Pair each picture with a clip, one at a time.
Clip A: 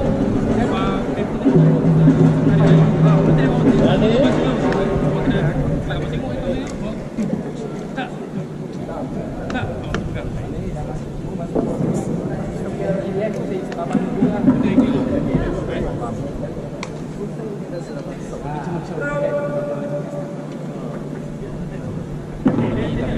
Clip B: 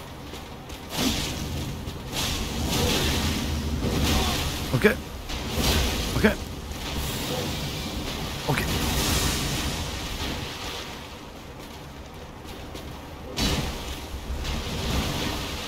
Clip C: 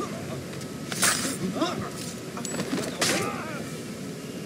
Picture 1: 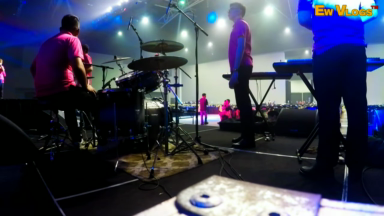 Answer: A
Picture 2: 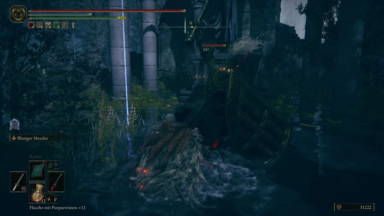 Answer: B